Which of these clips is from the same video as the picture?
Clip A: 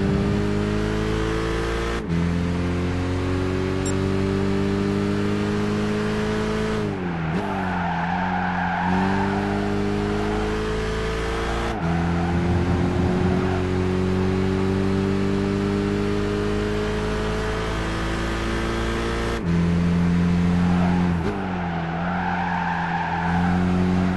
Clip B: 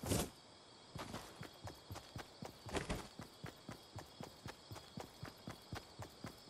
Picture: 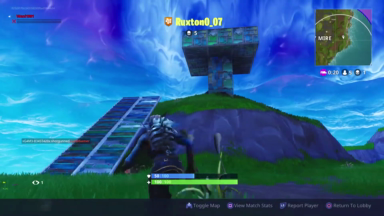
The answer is B